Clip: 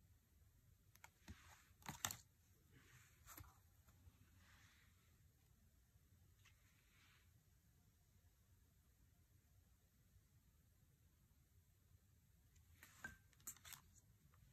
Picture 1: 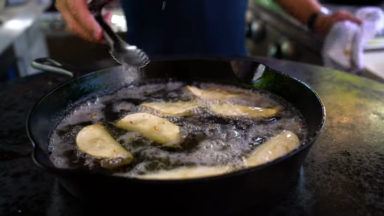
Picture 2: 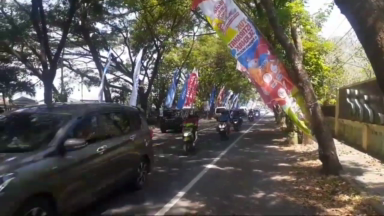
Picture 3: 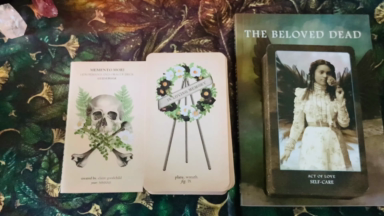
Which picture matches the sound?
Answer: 3